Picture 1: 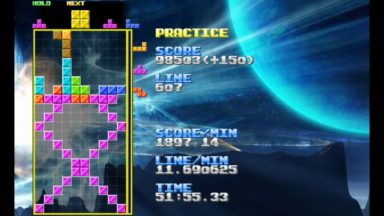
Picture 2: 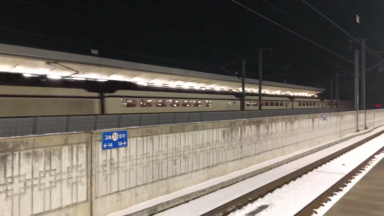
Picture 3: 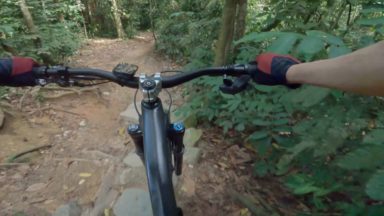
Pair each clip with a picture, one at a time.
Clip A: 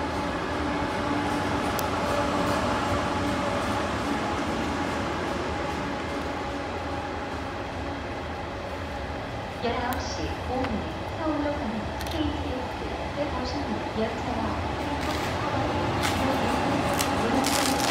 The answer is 2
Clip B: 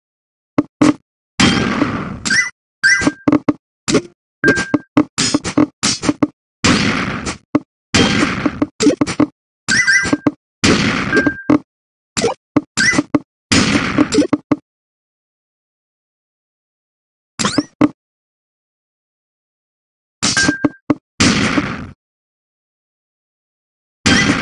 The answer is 1